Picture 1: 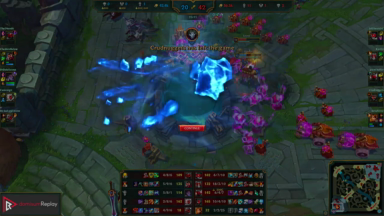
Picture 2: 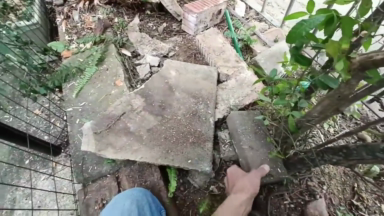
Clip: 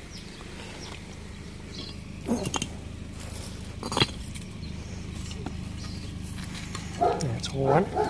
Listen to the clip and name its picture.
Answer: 2